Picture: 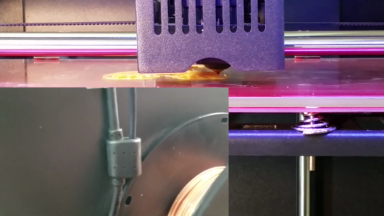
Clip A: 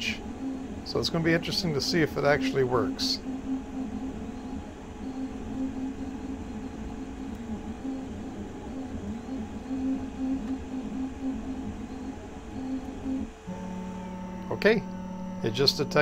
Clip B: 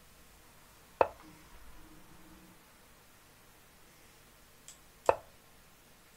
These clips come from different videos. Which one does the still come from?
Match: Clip A